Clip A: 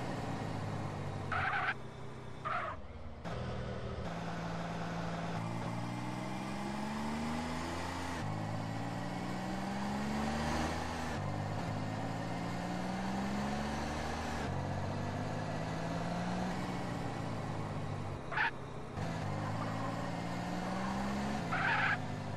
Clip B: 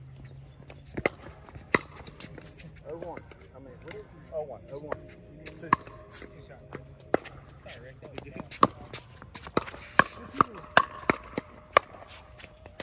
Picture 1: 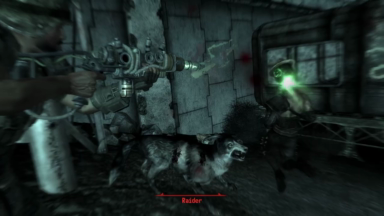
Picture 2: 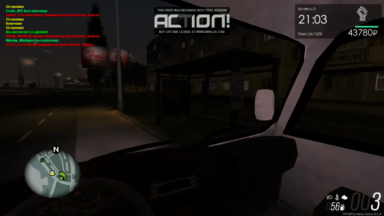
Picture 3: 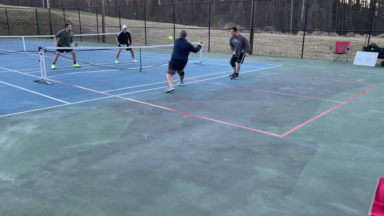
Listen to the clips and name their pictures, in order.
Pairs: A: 2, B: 3